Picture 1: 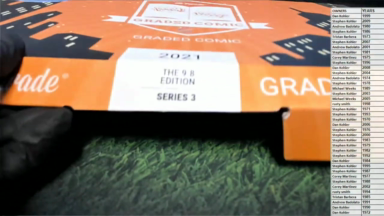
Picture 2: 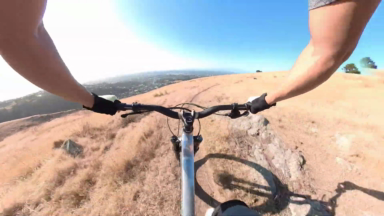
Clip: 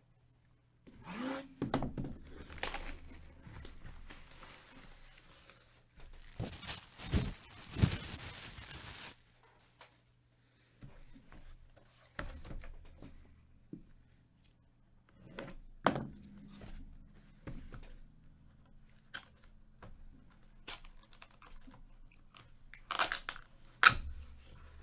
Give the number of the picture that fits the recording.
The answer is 1